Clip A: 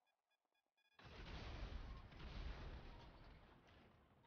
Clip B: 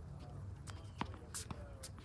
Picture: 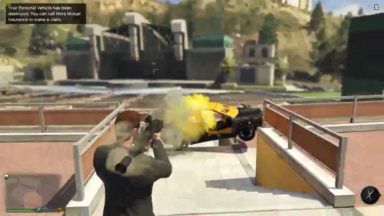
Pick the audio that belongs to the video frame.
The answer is A